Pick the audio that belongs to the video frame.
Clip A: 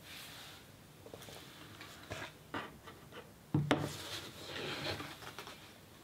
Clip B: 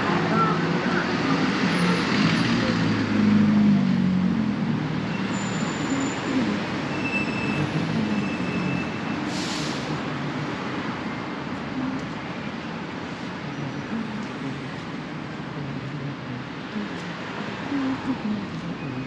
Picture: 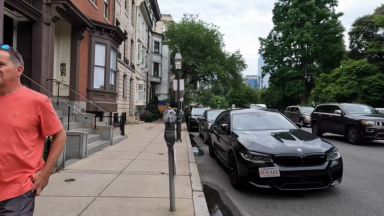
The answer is B